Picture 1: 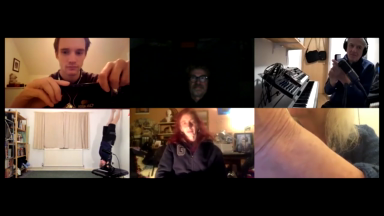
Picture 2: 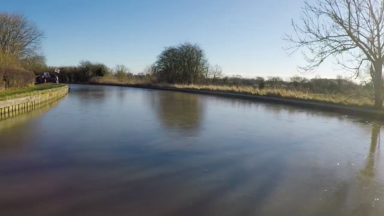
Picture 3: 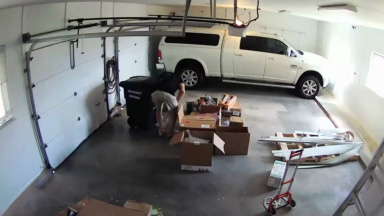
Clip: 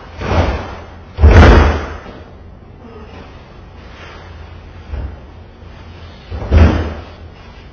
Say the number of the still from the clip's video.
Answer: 3